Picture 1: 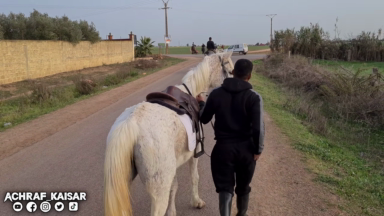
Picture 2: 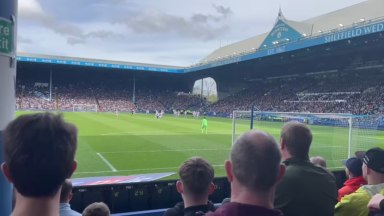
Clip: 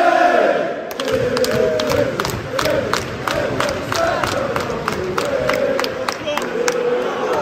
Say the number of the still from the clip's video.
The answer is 2